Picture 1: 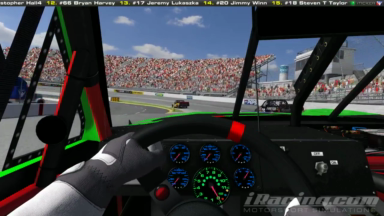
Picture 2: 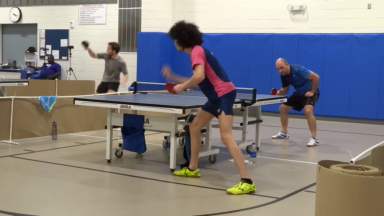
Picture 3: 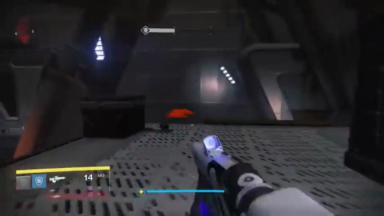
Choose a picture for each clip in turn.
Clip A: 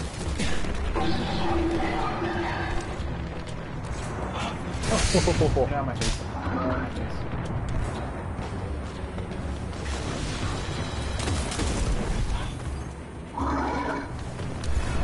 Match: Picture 3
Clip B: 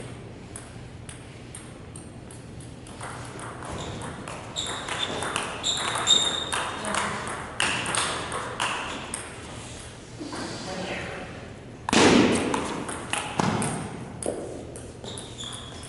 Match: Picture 2